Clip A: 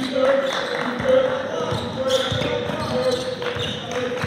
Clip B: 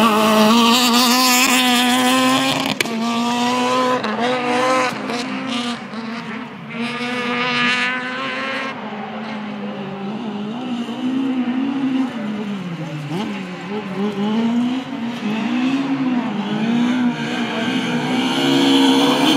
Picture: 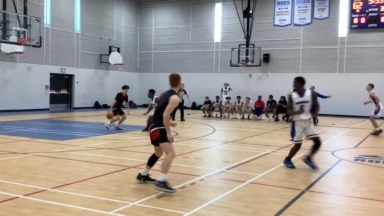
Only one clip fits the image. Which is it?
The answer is A